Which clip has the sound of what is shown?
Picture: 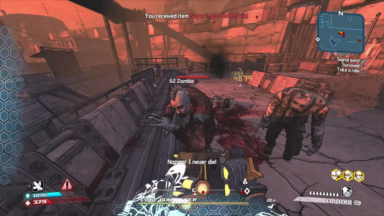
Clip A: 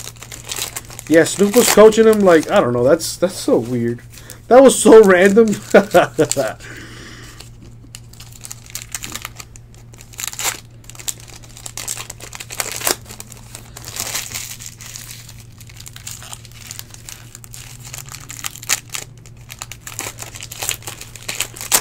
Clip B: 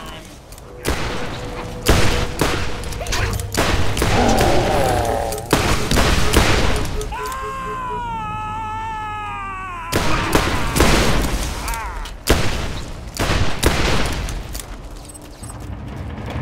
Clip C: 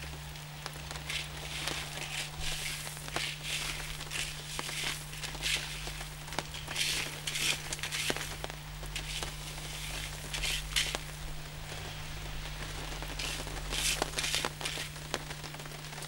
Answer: B